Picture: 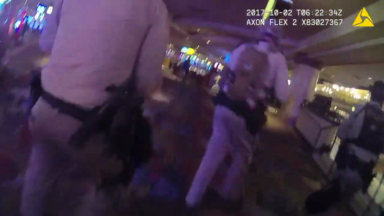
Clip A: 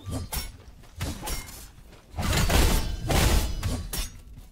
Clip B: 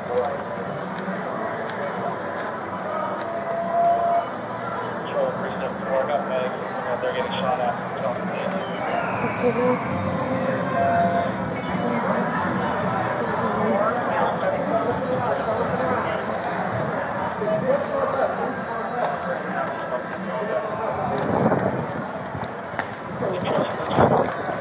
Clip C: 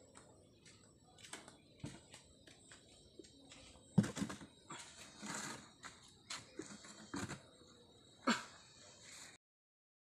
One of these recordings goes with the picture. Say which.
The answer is B